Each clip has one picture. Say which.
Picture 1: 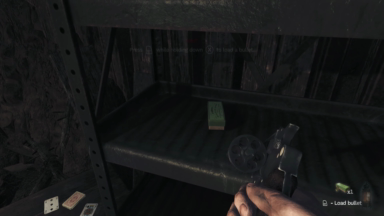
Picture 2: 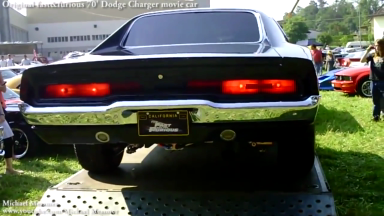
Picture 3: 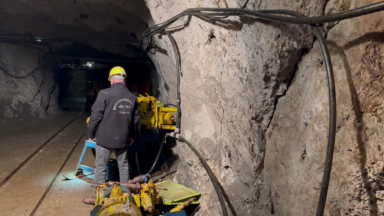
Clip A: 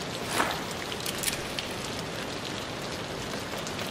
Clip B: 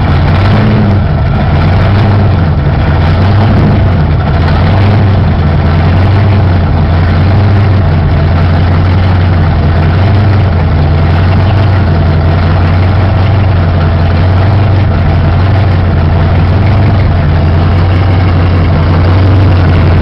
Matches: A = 1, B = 2